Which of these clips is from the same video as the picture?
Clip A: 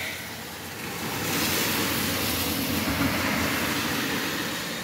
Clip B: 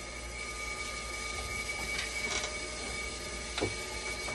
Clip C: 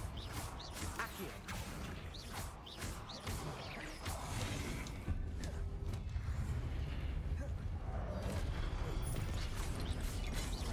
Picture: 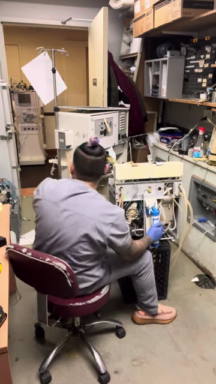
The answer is B